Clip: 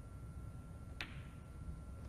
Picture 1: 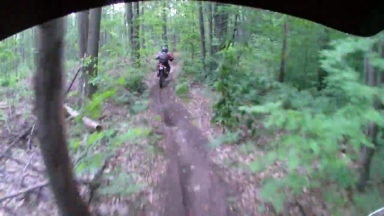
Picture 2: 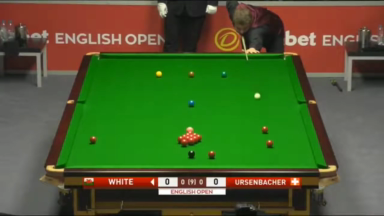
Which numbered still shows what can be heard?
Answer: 2